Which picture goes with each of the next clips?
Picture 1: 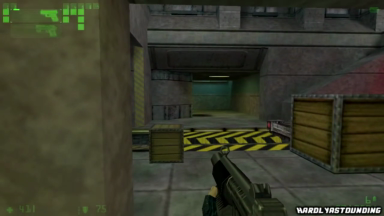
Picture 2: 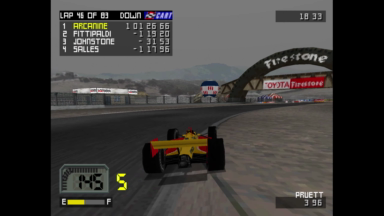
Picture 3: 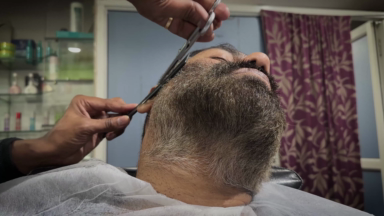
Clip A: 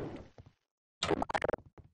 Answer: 1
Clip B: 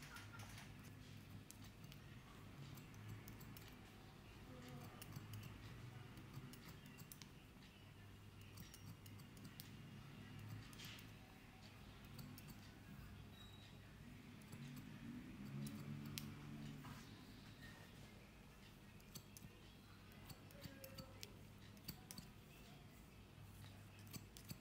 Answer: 3